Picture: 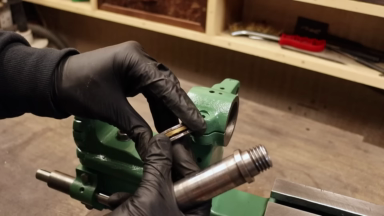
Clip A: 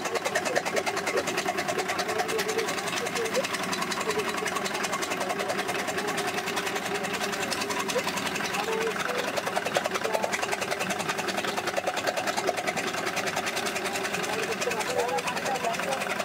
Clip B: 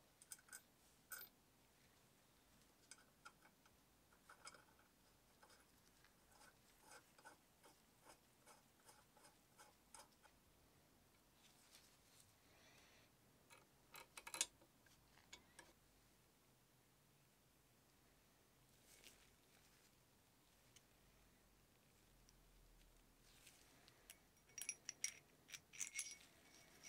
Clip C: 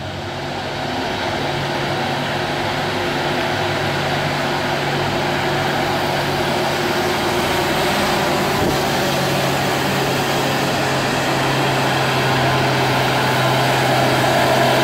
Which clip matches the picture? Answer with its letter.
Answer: B